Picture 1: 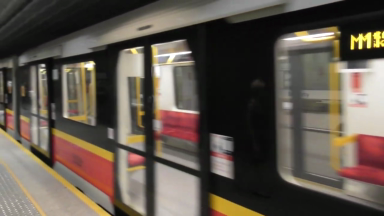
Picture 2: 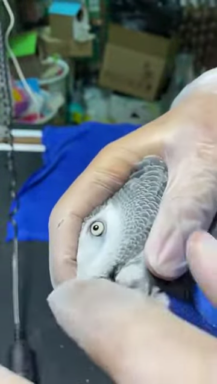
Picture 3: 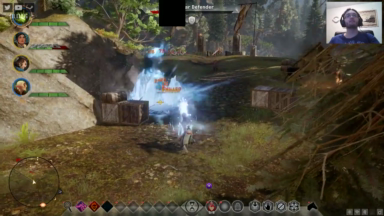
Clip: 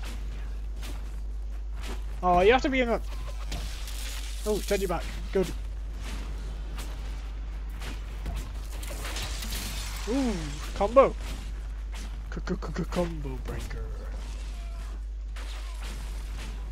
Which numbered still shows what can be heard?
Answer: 3